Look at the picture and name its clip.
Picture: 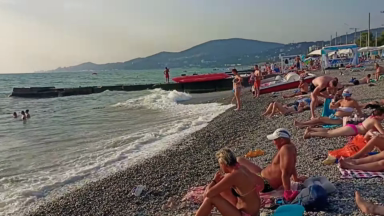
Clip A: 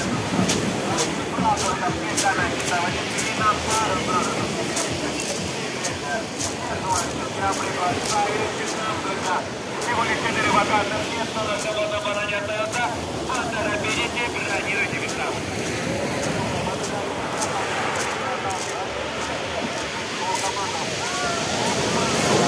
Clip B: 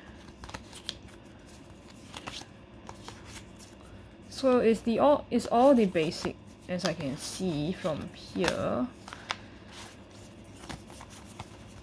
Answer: A